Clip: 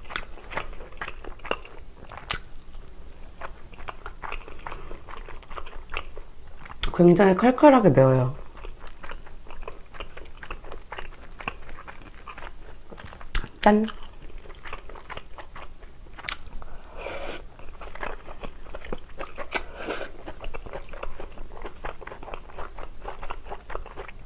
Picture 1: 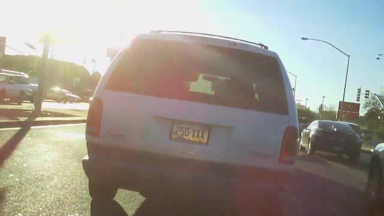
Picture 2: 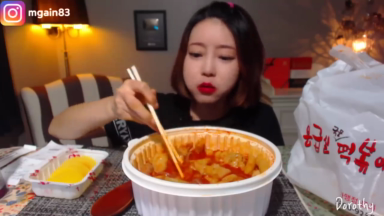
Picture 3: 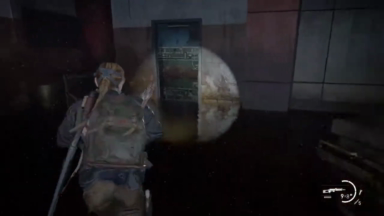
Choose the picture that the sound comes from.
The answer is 2